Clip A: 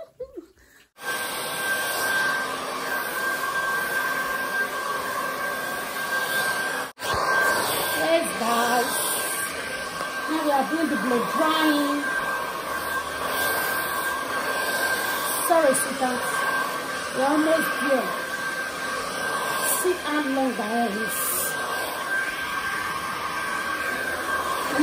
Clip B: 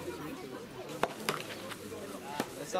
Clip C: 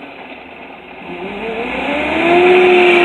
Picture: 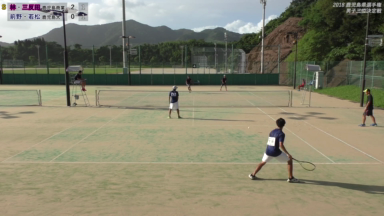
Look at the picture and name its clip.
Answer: B